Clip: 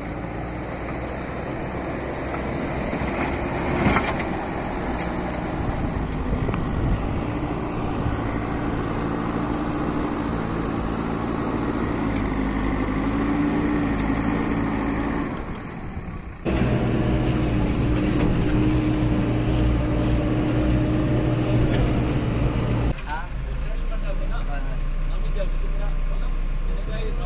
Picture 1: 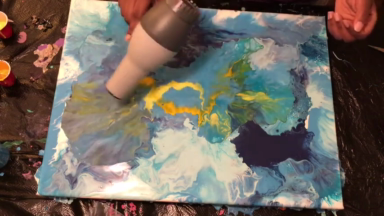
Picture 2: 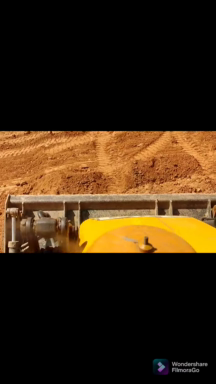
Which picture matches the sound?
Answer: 2